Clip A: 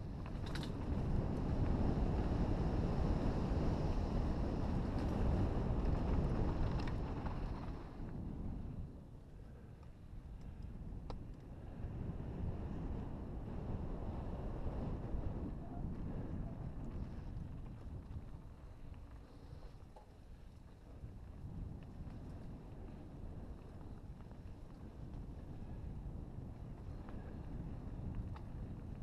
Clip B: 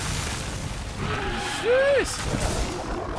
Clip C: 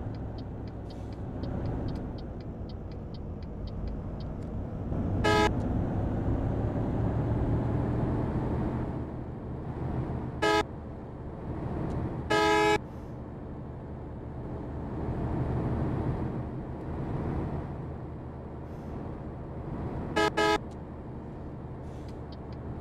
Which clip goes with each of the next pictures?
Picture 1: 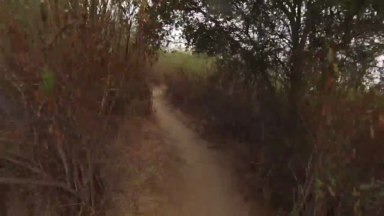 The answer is A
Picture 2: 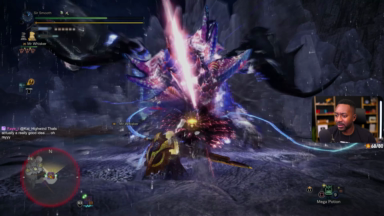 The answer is B